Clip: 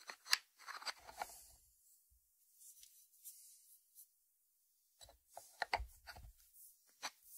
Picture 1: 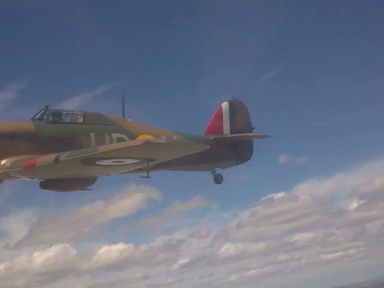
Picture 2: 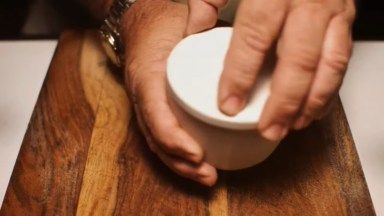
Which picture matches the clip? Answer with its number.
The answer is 2